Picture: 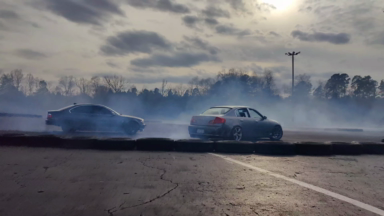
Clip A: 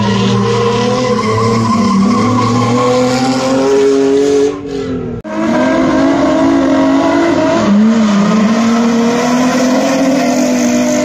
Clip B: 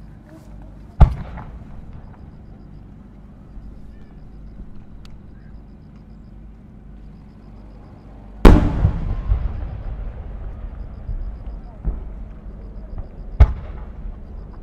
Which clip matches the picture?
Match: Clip A